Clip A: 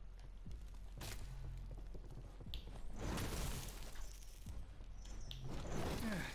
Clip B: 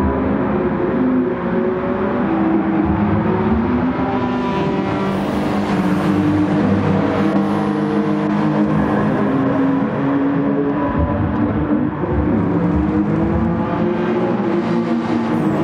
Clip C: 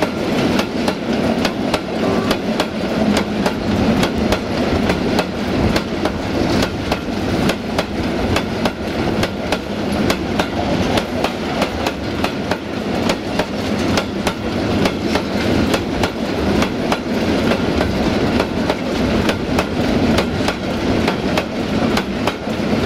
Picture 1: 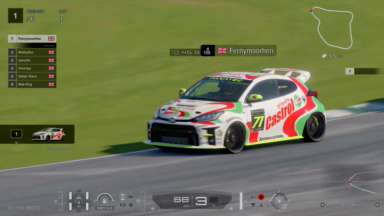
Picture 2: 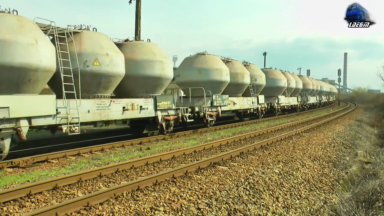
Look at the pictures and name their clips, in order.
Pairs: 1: B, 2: C